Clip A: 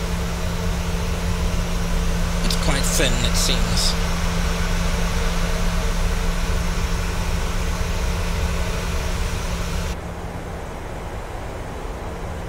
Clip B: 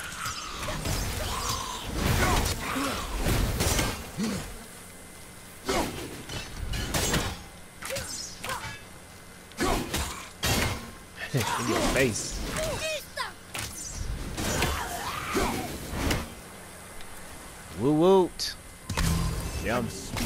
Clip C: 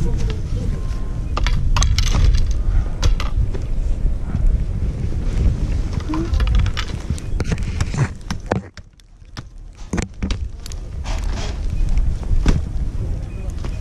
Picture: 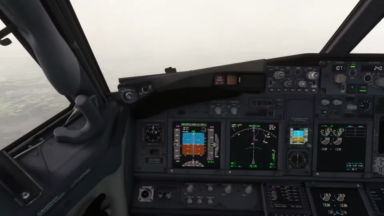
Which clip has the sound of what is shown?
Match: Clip A